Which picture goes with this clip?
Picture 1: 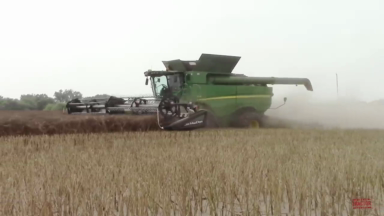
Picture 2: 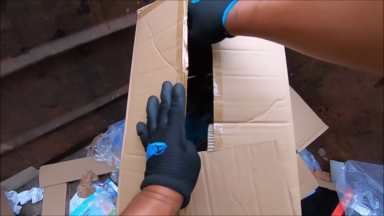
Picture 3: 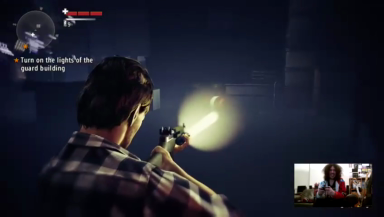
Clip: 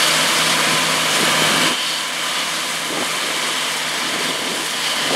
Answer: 1